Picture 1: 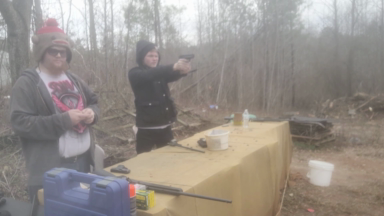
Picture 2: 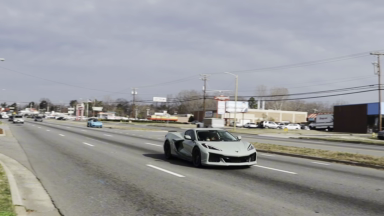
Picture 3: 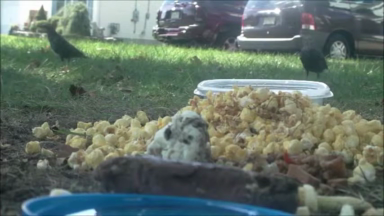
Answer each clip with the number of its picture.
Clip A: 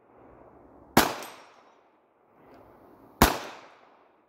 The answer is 1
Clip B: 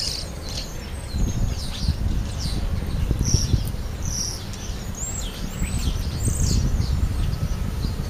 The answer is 3